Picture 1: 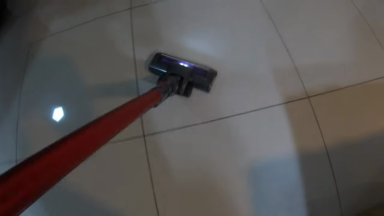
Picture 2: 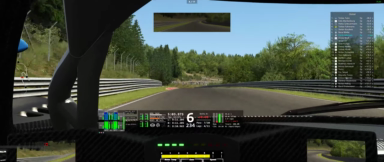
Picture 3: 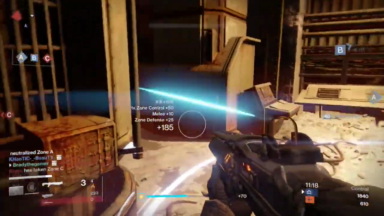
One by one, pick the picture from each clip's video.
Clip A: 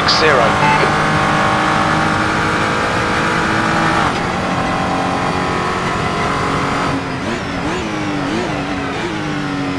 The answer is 2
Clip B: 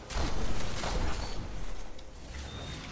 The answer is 3